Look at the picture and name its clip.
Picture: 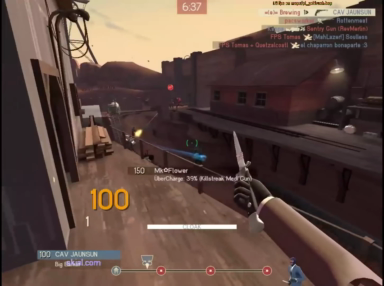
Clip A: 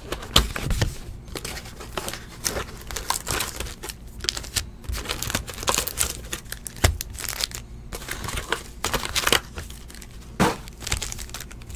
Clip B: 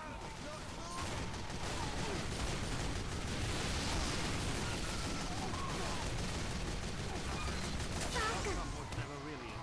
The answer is B